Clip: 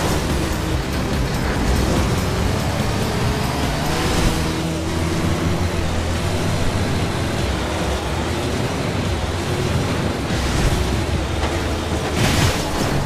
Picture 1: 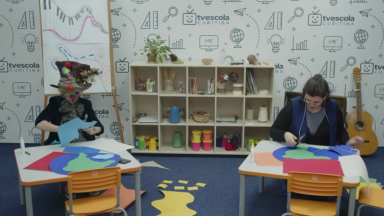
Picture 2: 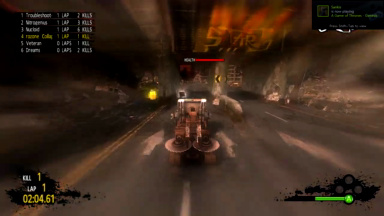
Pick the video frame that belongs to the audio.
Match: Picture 2